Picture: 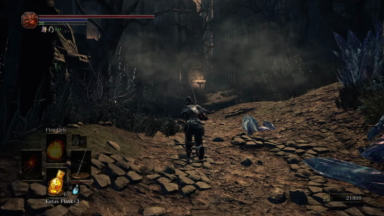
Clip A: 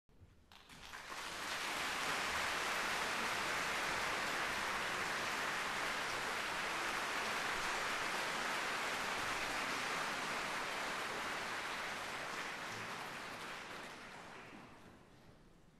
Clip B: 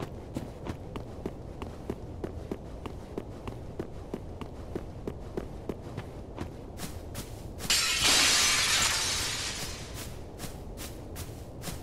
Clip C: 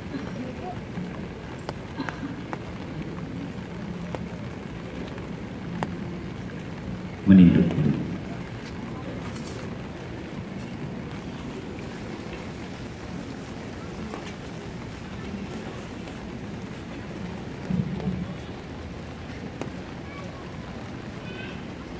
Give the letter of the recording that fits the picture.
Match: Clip B